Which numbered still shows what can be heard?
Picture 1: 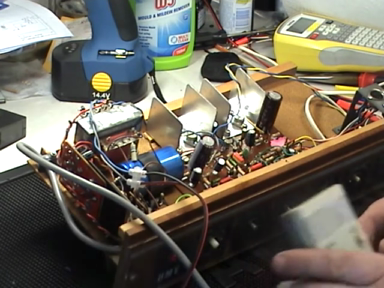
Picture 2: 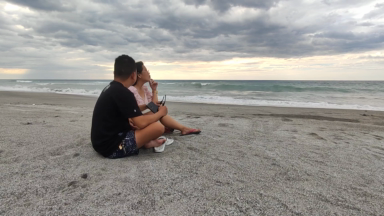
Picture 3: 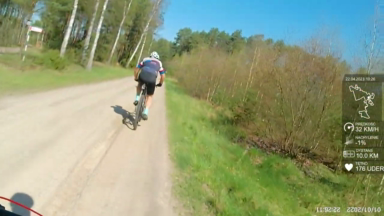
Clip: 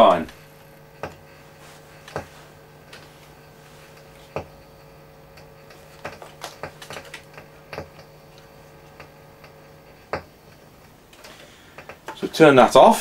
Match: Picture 1